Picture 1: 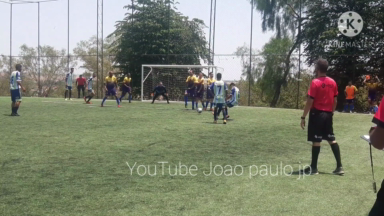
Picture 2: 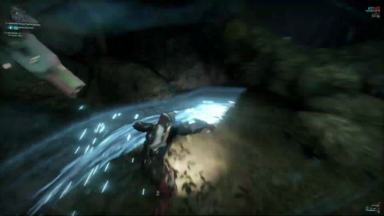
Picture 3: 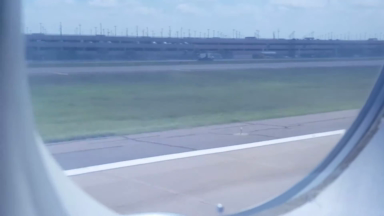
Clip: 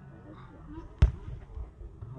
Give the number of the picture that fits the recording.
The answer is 1